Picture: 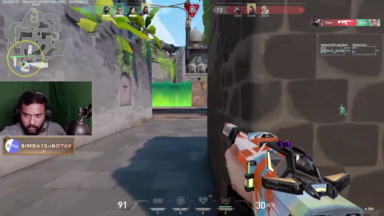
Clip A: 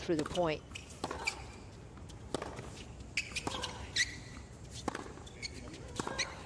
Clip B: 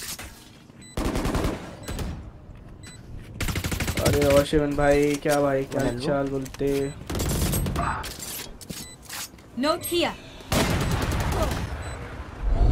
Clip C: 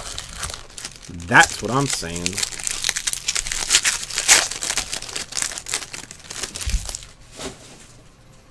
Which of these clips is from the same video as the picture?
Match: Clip B